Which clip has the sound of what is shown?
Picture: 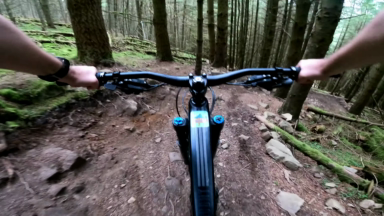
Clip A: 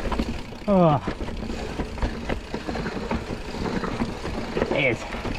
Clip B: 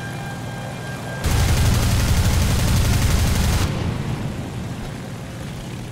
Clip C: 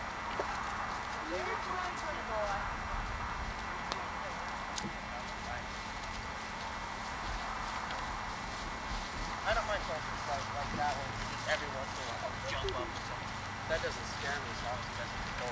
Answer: A